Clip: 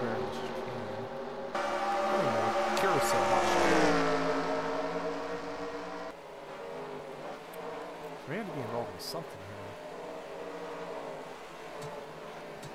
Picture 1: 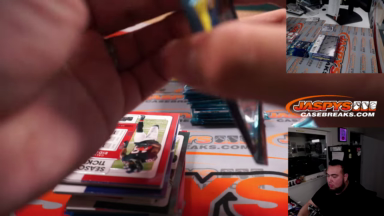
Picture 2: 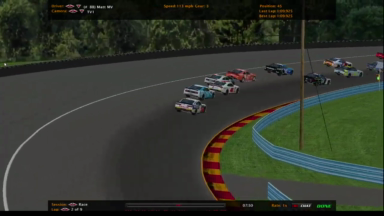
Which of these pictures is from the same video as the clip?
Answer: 2